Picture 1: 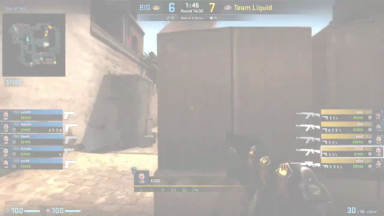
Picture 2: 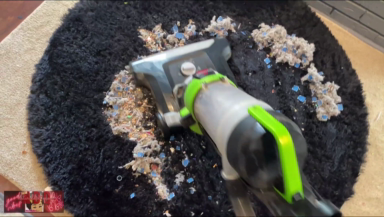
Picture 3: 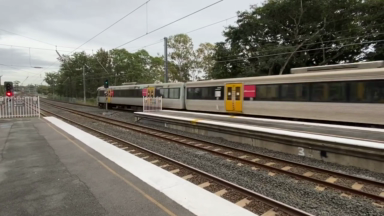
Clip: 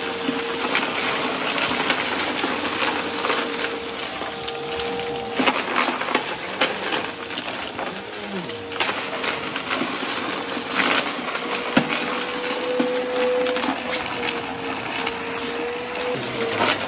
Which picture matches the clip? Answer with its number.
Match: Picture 2